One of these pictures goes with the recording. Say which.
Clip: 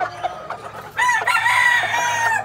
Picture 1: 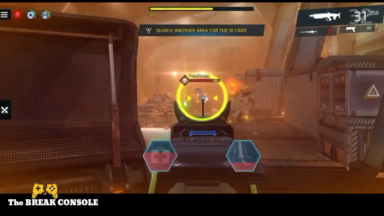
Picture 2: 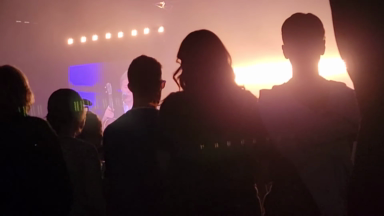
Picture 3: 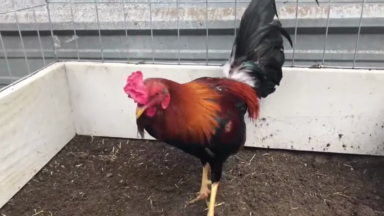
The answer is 3